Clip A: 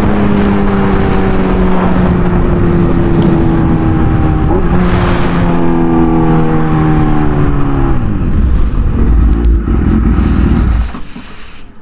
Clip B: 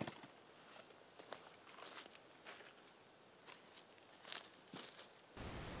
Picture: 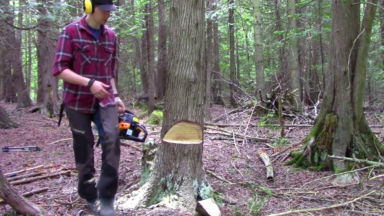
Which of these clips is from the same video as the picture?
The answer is B